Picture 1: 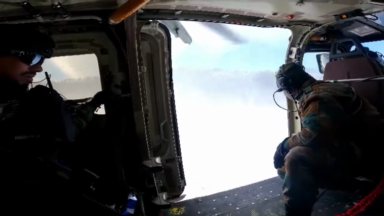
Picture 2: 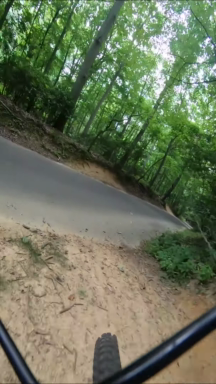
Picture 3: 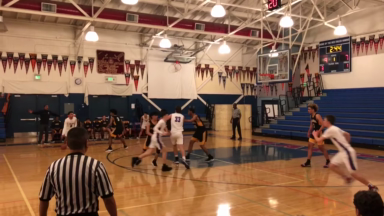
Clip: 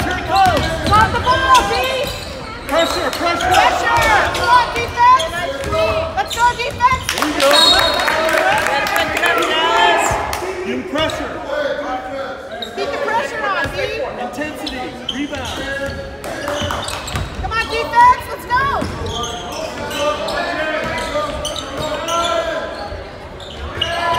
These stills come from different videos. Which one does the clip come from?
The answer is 3